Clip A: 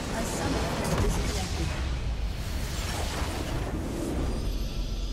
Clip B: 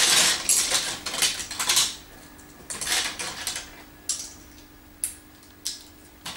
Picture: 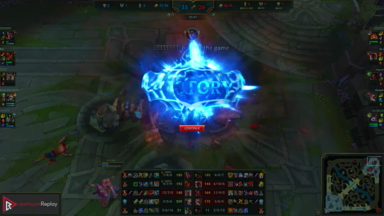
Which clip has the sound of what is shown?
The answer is A